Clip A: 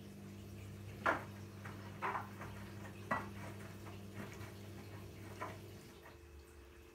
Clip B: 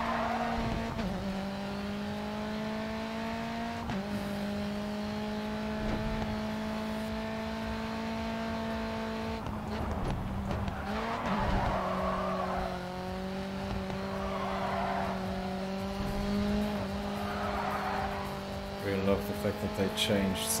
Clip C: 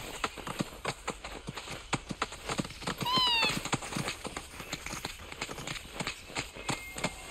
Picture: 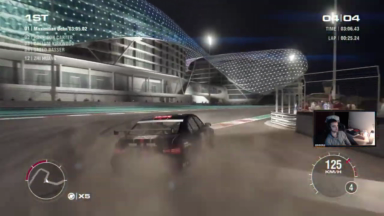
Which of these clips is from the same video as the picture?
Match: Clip B